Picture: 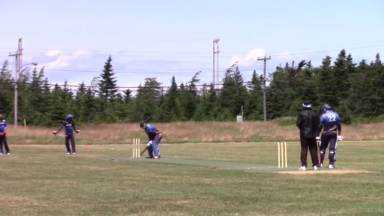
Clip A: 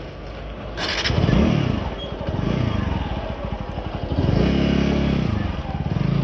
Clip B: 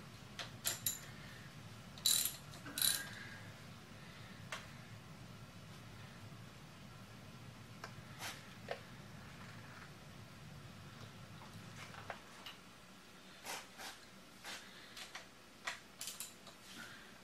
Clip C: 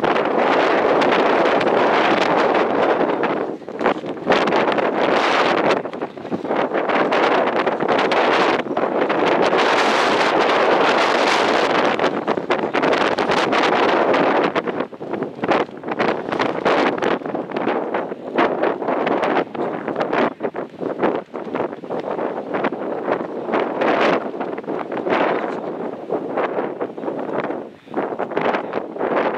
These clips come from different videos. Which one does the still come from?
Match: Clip C